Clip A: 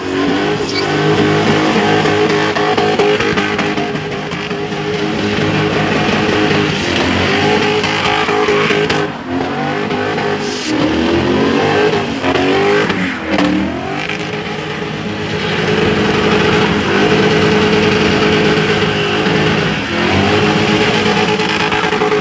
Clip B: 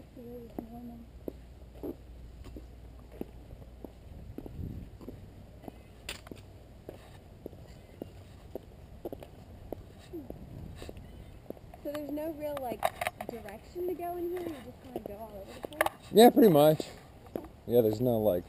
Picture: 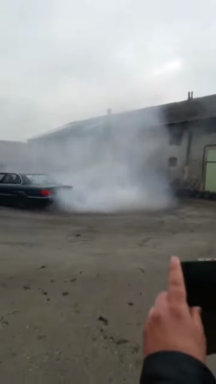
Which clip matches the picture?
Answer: A